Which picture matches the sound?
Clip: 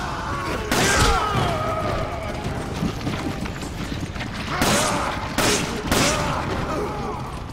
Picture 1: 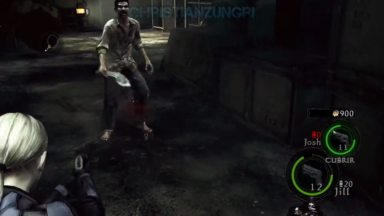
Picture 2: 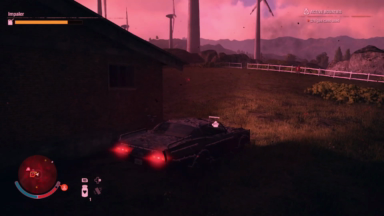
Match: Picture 1